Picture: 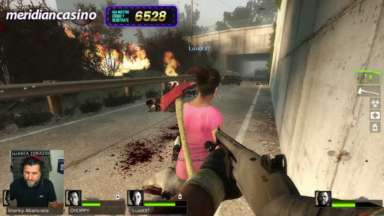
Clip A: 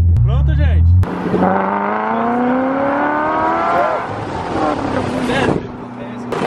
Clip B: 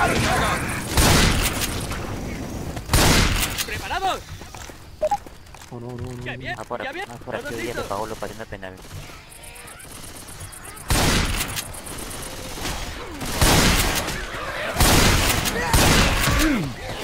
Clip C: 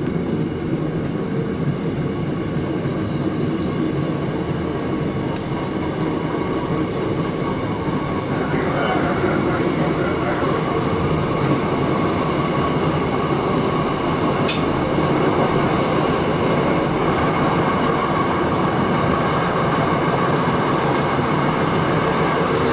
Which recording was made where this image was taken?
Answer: B